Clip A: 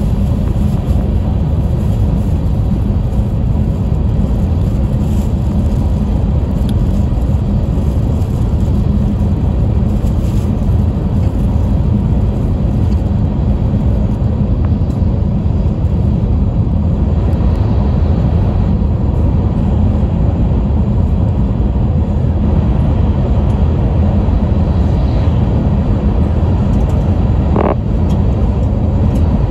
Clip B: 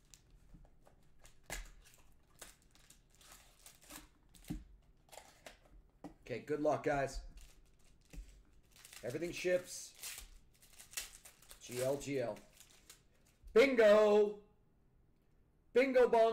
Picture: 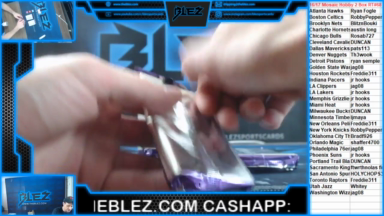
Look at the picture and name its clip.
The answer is B